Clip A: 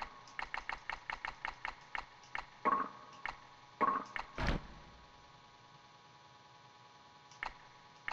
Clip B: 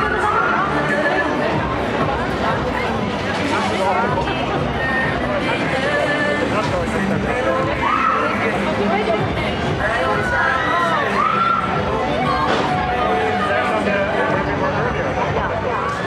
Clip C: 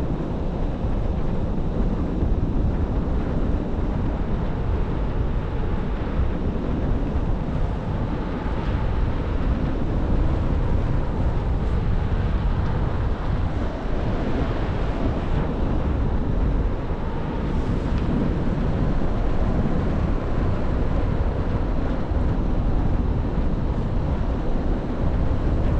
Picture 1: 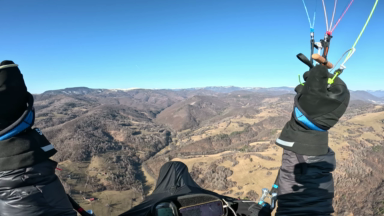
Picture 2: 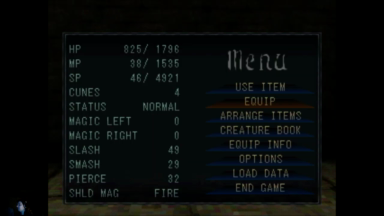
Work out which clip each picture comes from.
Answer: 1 C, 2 A